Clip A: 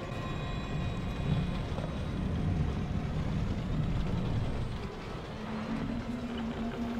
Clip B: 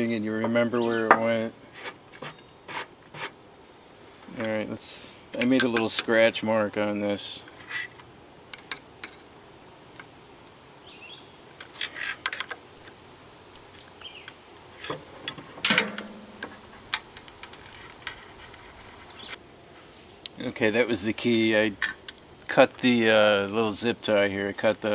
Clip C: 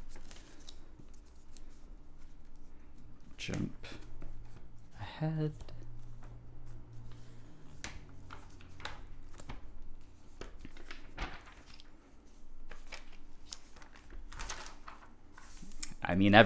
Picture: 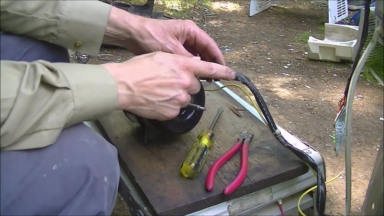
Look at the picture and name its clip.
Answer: B